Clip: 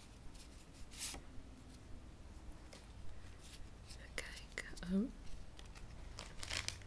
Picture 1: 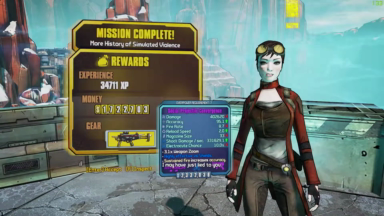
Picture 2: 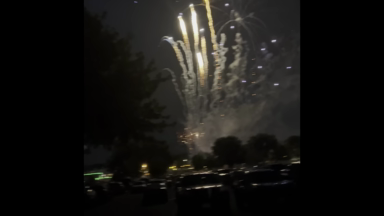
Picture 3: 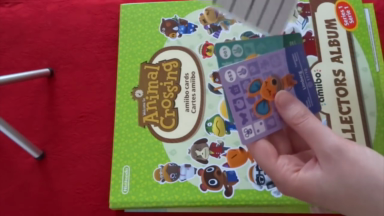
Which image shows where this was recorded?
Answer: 3